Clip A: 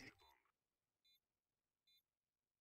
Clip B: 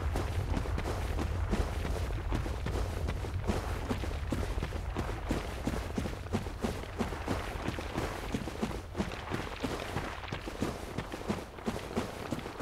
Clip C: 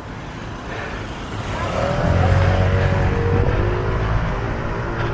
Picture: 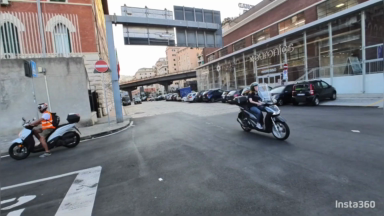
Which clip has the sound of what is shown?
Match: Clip C